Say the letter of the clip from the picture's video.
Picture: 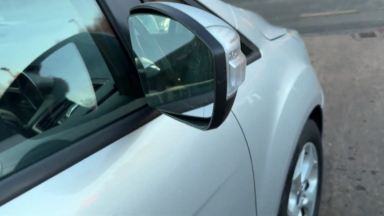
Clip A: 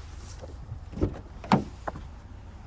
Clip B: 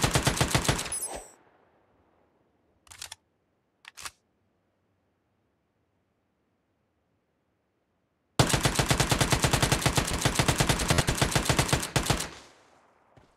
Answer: A